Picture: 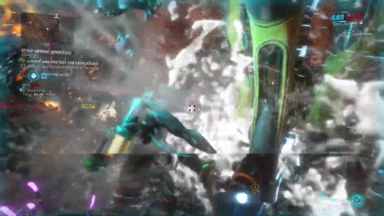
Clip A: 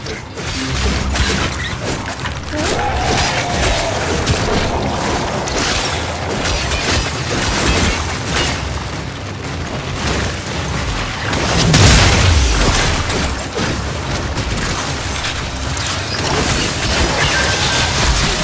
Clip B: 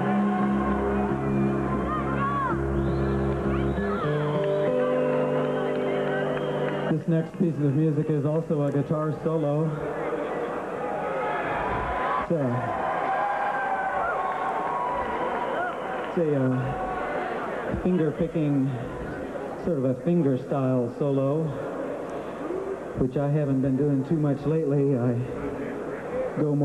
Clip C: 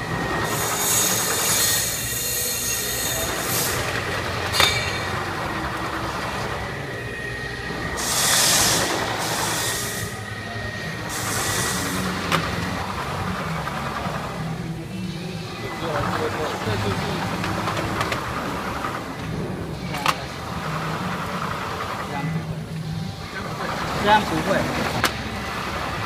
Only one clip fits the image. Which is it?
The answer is A